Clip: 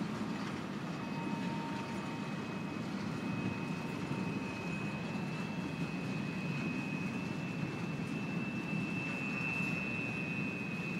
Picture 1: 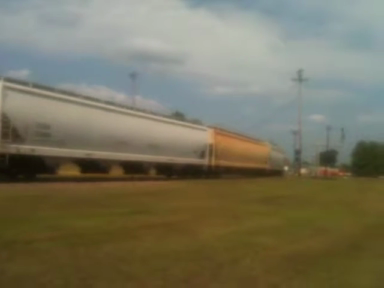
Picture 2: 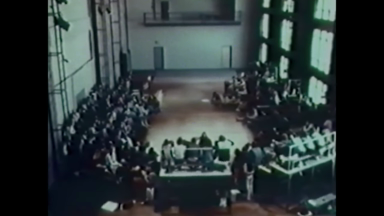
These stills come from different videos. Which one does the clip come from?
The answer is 1